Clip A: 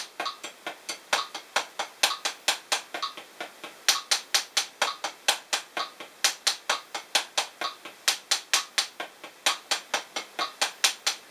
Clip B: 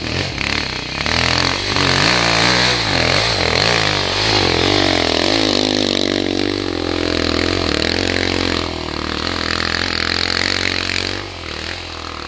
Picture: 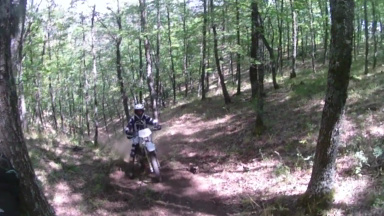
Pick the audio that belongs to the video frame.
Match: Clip B